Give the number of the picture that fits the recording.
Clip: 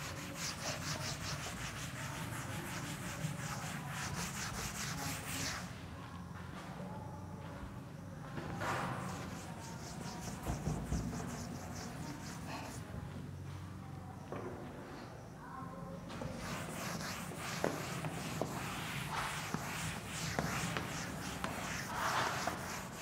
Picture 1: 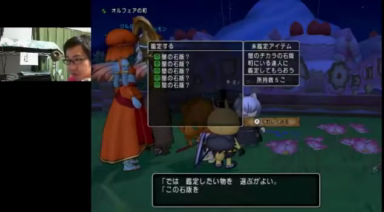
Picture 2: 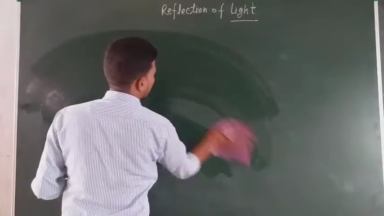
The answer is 2